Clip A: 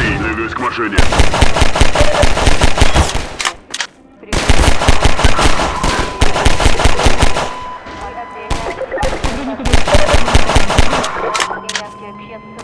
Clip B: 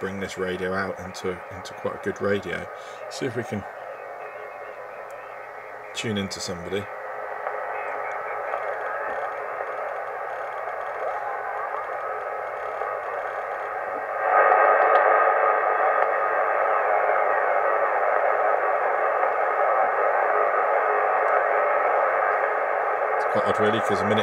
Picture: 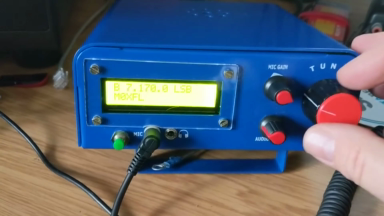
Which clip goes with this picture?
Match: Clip B